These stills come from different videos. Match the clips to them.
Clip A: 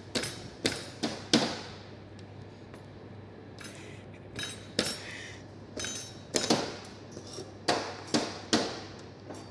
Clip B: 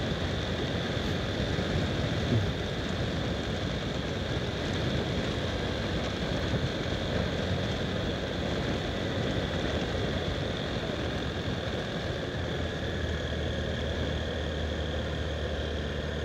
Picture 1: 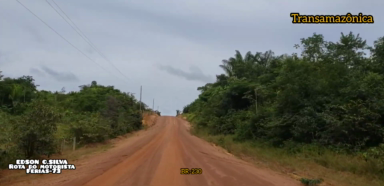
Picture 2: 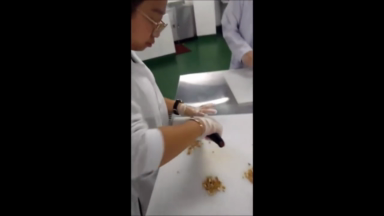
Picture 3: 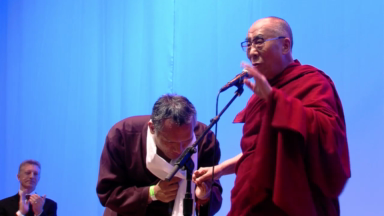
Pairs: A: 2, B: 1